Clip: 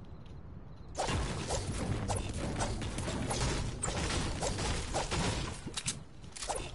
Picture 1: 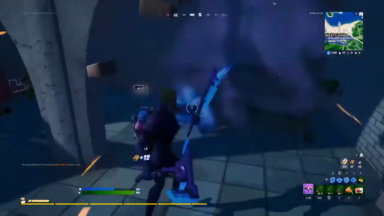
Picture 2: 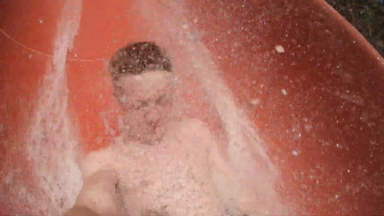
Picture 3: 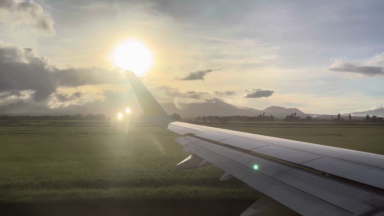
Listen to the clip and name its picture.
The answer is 1